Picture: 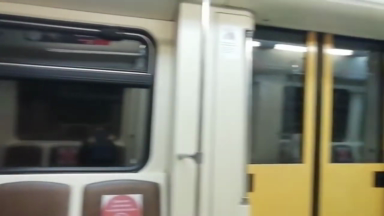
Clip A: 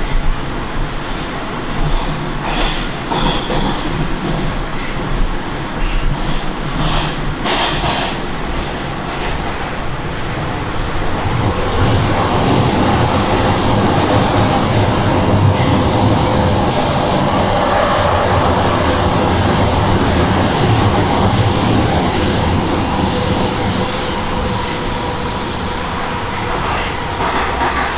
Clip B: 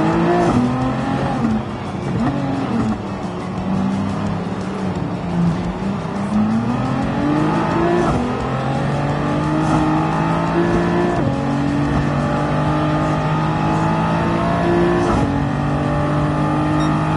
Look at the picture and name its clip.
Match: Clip A